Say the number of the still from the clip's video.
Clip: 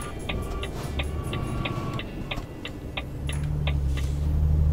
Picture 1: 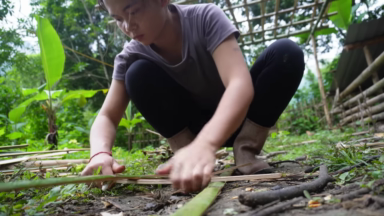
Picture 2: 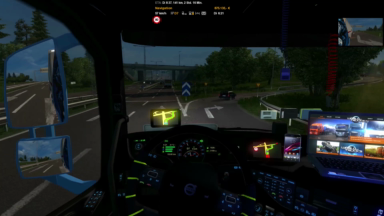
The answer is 2